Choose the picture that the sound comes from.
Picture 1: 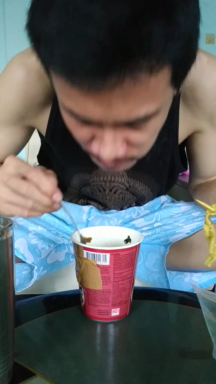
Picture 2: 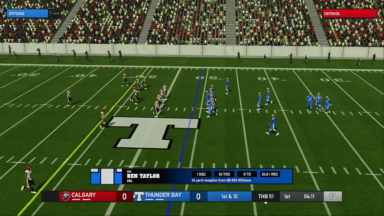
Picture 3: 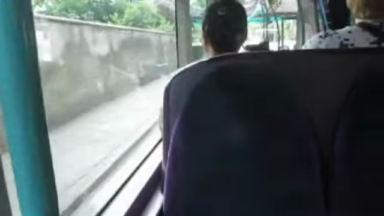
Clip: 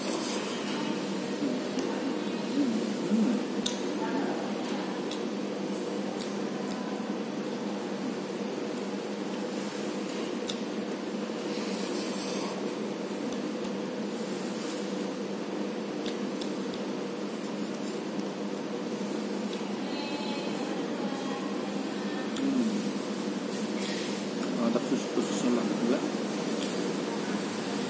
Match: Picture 1